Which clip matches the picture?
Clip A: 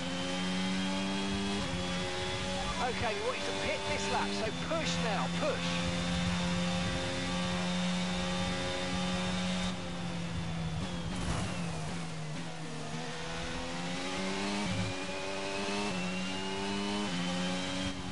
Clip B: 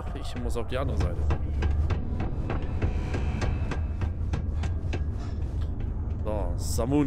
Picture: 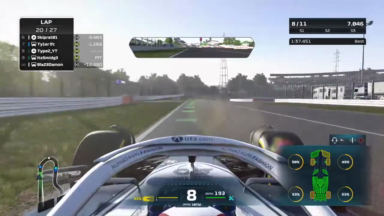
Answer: A